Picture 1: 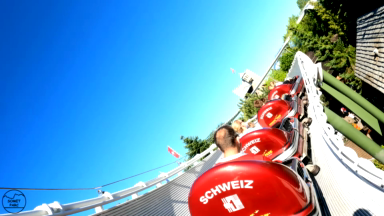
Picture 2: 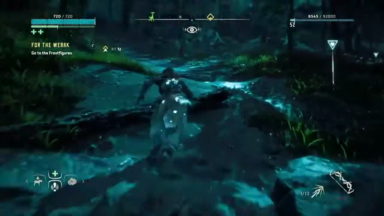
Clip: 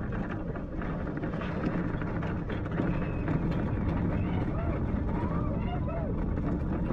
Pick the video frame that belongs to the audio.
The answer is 1